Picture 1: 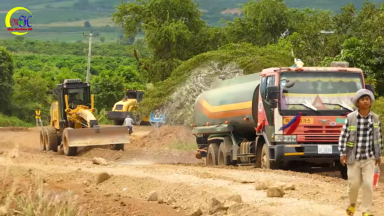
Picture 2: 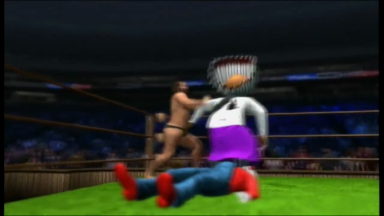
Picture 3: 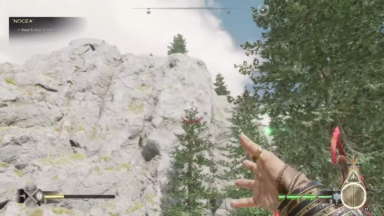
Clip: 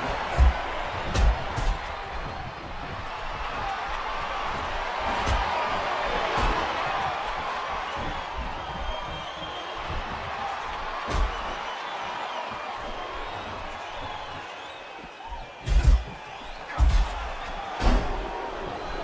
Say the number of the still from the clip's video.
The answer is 2